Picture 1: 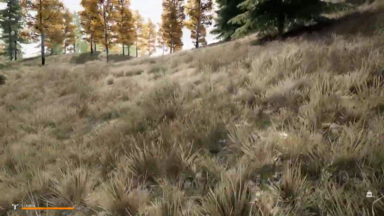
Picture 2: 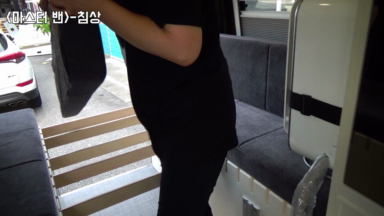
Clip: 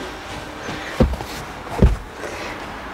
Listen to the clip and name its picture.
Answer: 2